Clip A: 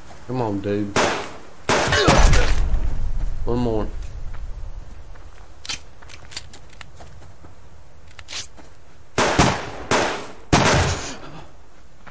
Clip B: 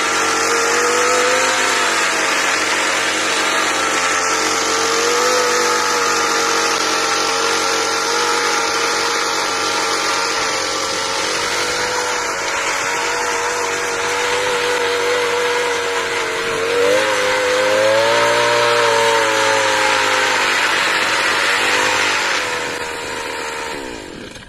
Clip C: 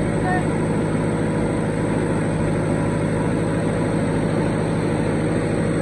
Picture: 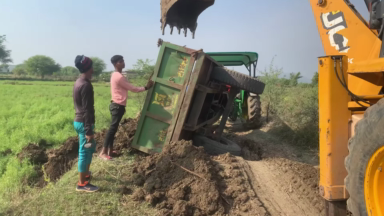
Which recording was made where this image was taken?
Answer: C